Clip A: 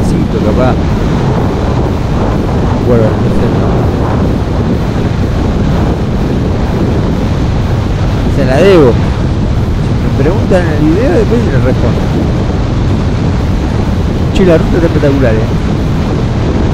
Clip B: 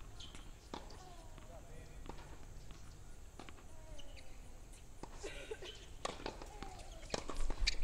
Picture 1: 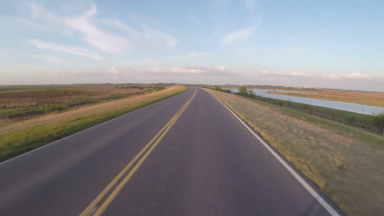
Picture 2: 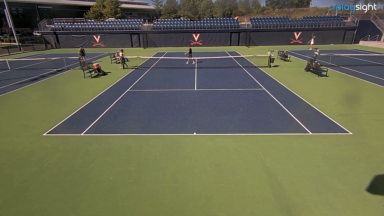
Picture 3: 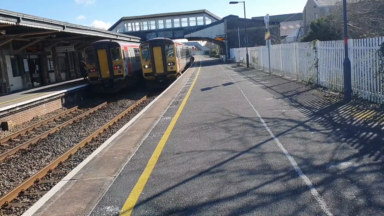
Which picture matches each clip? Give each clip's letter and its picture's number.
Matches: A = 1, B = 2